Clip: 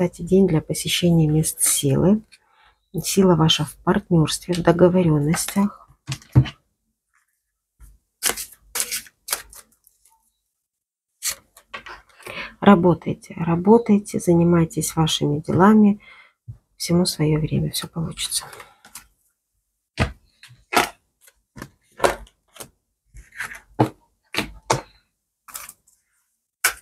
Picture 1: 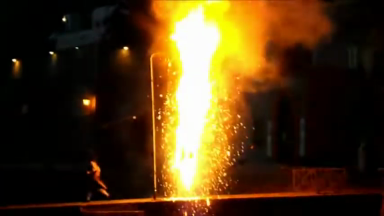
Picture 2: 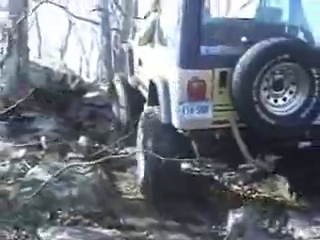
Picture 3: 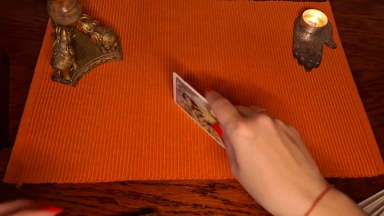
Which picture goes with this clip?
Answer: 3